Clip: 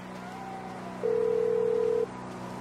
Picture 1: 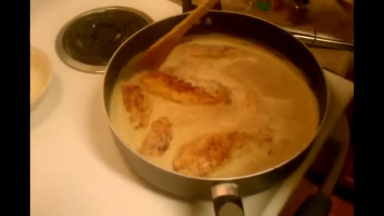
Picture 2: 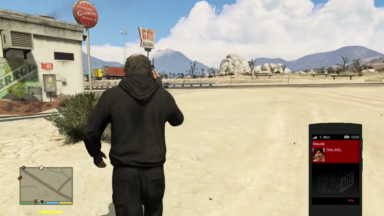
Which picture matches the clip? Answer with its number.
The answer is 2